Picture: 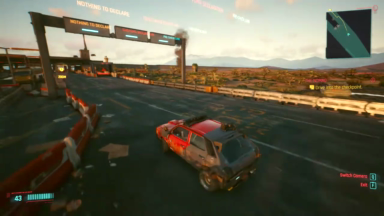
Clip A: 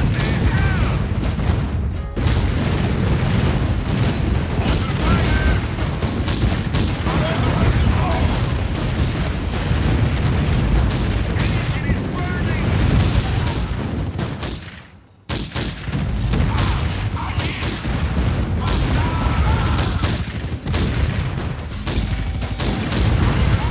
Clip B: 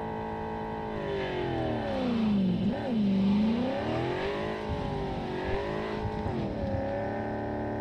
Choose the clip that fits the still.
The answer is B